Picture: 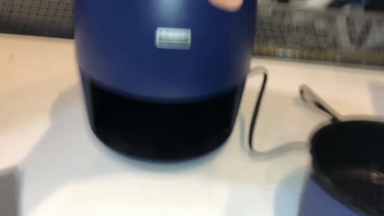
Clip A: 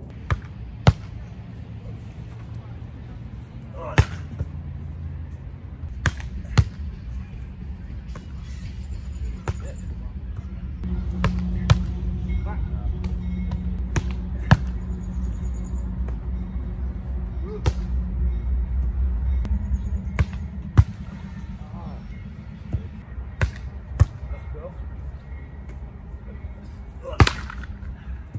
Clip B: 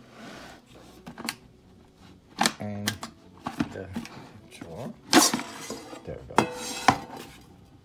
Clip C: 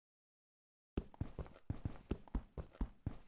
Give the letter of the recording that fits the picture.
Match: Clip B